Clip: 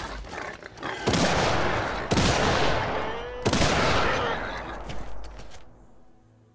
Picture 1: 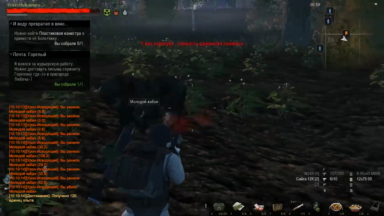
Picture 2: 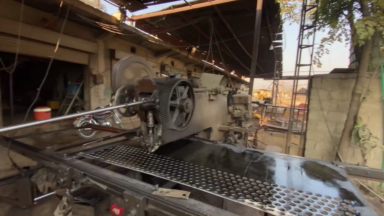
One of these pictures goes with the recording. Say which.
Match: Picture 1